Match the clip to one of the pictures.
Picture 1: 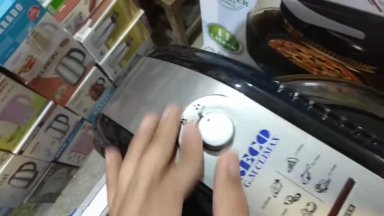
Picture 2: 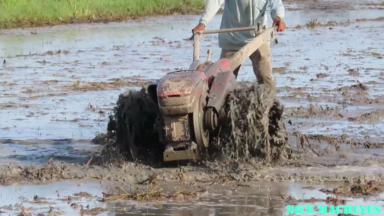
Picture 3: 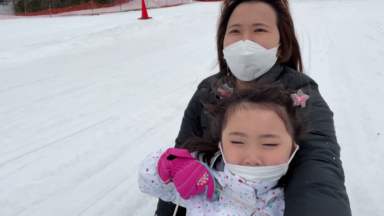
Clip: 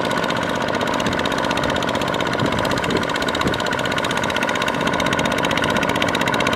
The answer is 2